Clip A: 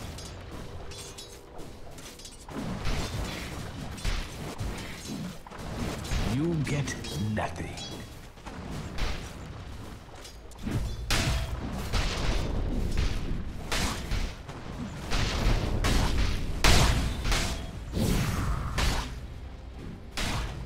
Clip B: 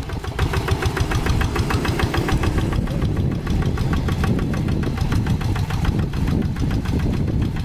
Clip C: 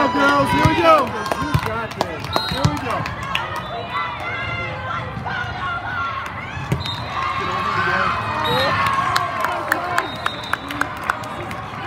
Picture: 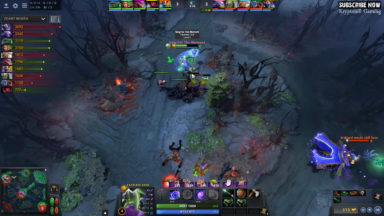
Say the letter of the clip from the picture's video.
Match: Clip A